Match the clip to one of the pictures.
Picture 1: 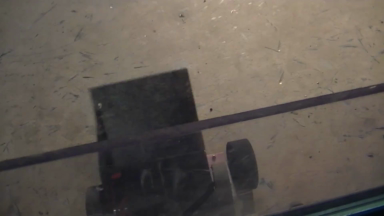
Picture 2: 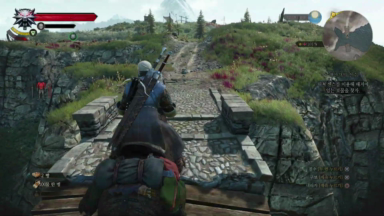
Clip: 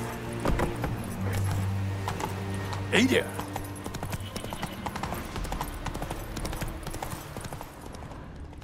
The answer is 2